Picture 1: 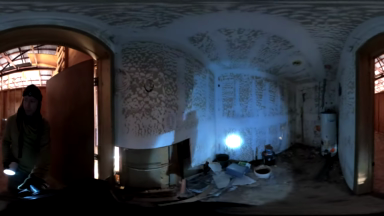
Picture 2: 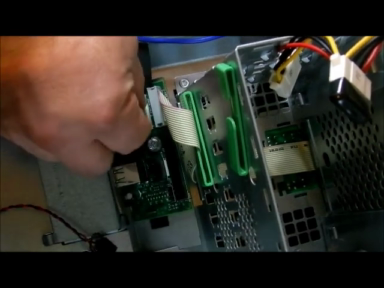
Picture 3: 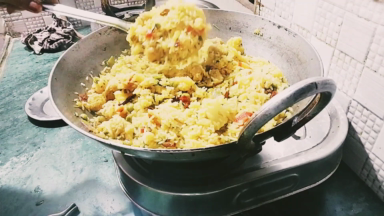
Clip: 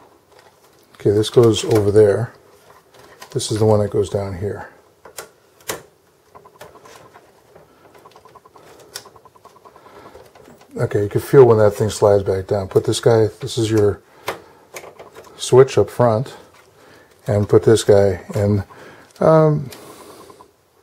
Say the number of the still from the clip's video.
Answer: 2